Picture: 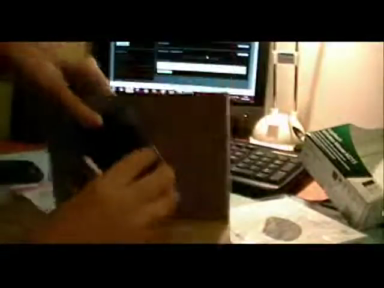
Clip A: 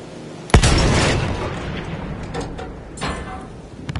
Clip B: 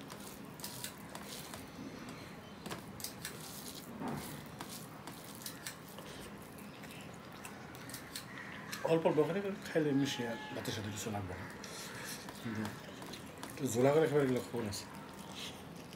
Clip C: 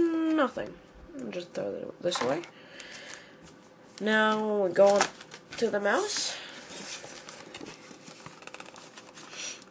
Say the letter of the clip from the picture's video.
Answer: C